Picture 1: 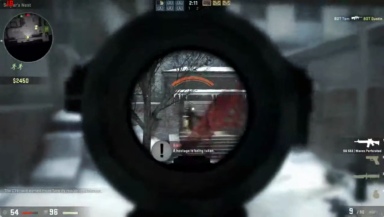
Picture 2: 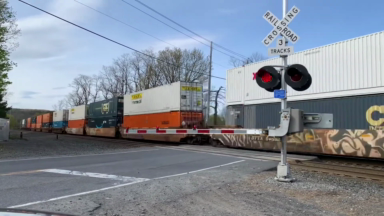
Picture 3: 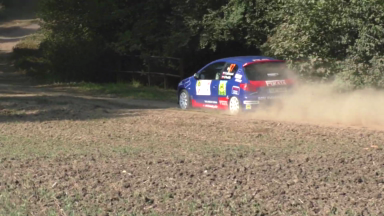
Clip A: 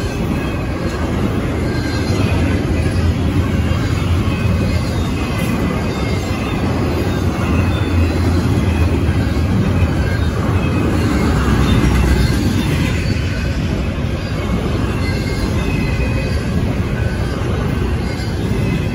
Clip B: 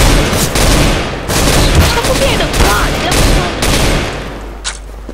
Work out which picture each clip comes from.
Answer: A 2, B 1